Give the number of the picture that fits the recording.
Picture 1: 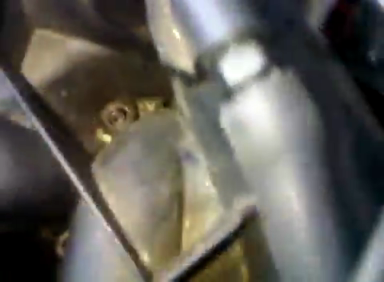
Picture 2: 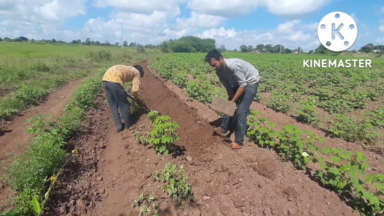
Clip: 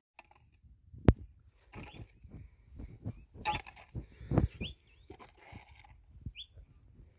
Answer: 2